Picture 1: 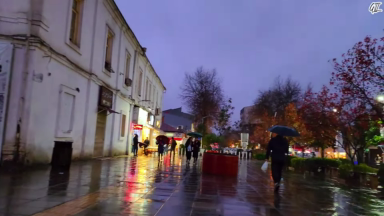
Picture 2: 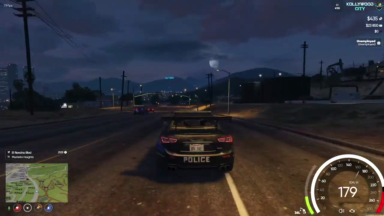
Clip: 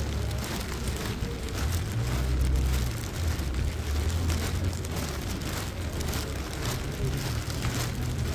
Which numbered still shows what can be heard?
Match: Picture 1